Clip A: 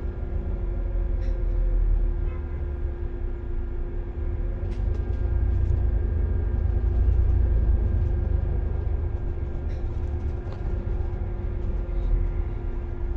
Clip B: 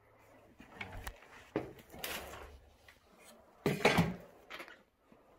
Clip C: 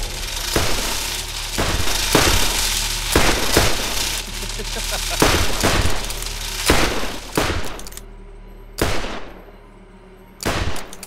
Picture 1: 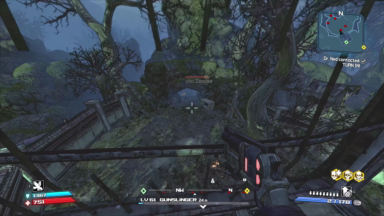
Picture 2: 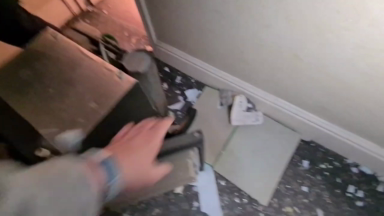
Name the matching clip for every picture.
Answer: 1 C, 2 B